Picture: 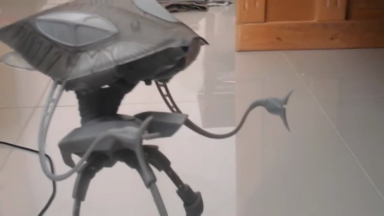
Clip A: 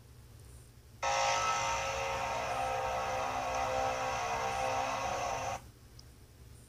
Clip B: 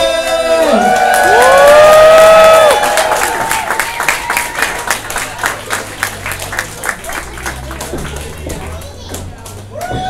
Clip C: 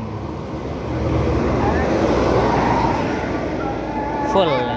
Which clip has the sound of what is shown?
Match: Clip A